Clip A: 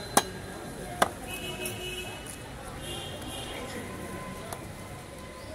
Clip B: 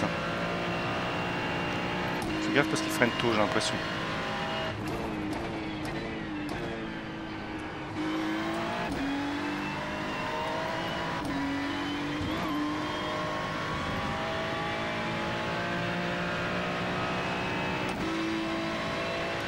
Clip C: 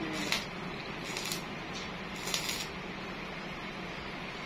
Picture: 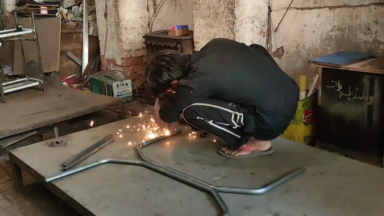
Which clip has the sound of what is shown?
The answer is C